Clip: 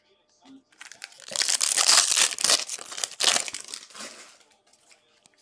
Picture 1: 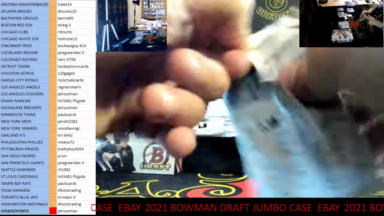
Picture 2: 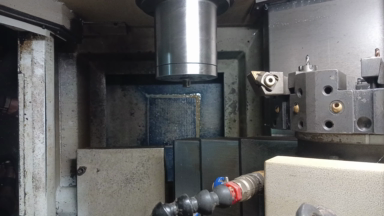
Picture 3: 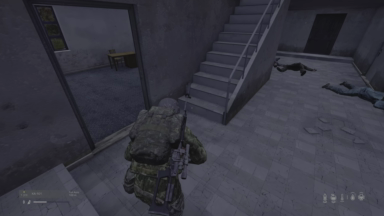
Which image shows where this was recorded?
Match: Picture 1